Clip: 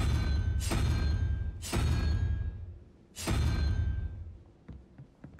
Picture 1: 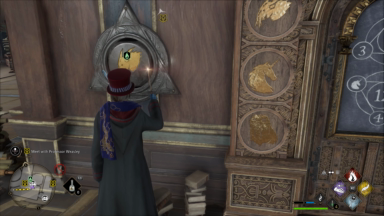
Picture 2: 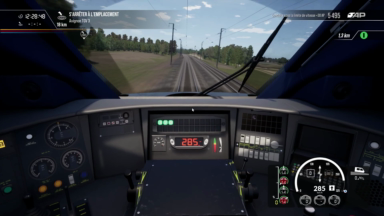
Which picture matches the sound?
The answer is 1